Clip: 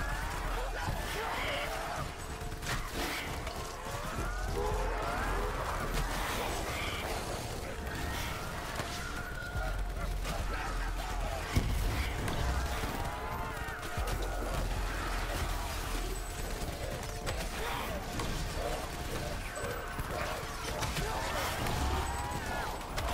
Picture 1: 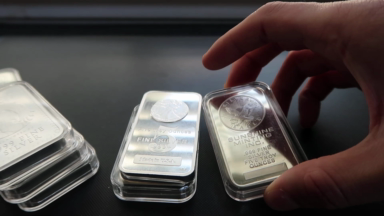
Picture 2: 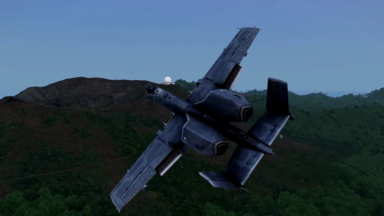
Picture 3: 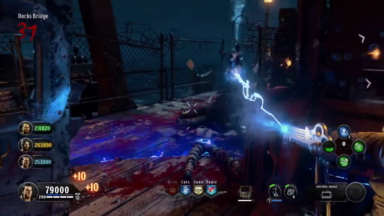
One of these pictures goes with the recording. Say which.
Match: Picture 3